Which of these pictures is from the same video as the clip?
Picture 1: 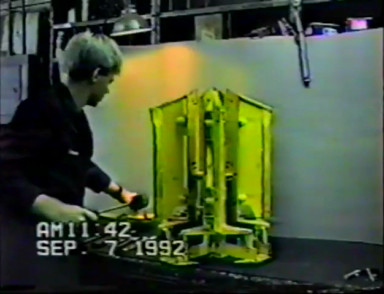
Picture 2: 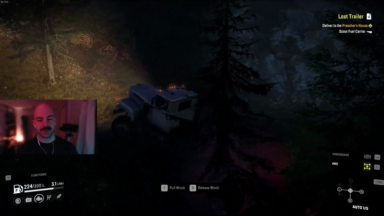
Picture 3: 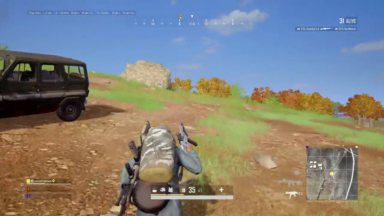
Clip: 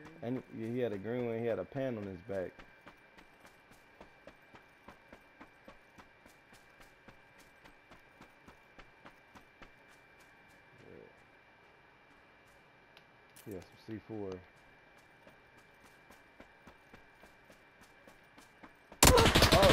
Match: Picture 3